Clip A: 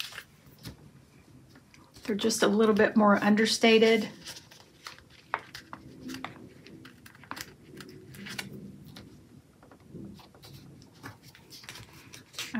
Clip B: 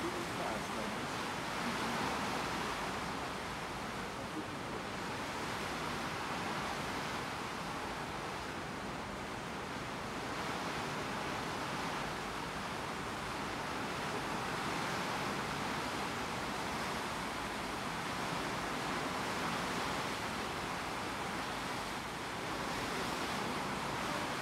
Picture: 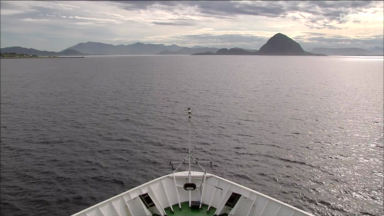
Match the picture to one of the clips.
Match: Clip B